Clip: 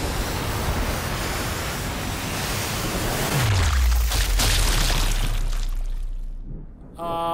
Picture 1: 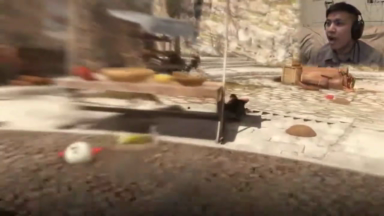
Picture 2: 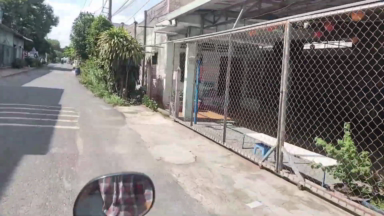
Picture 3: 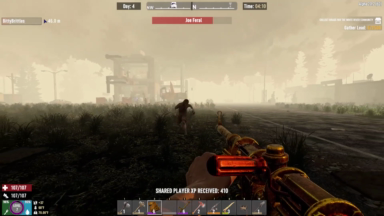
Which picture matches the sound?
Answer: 1